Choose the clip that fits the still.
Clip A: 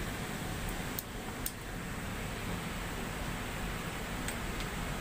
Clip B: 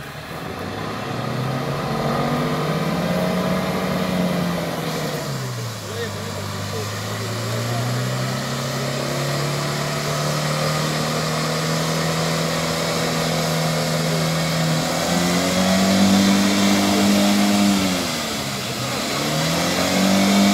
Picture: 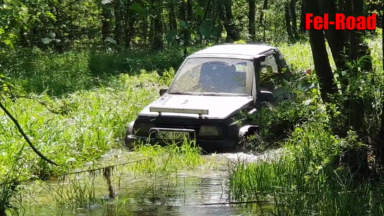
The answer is B